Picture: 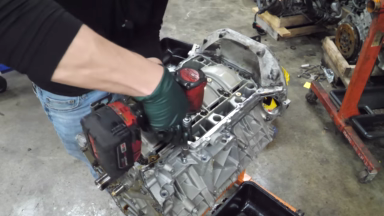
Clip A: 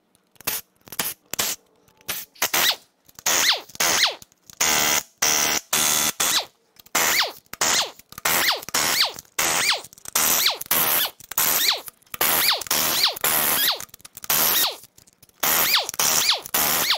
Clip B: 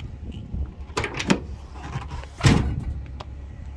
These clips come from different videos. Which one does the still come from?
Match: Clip A